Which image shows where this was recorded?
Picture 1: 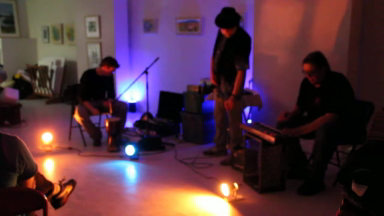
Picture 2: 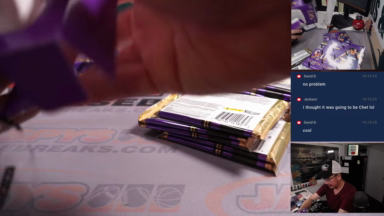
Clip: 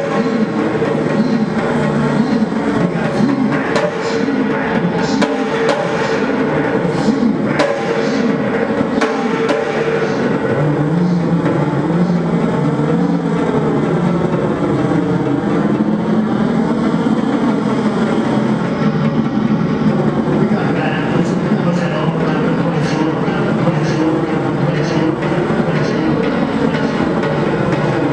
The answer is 1